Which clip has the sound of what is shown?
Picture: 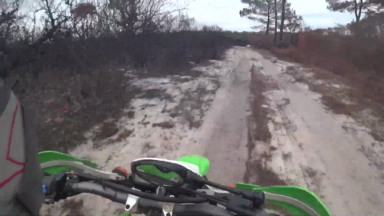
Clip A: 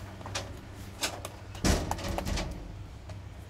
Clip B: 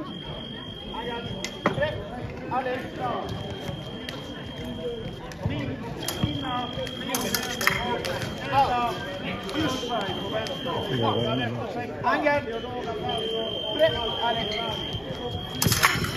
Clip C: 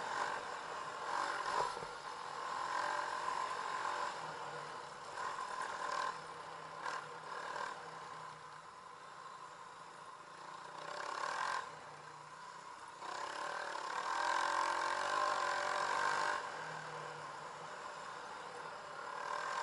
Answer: C